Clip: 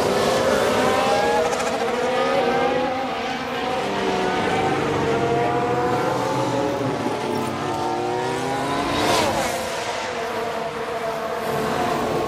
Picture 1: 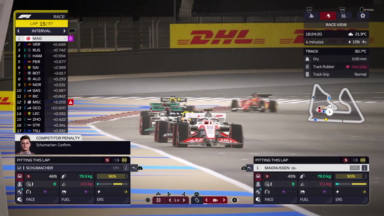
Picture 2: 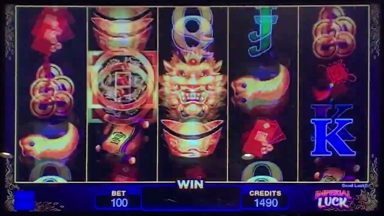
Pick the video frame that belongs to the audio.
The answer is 1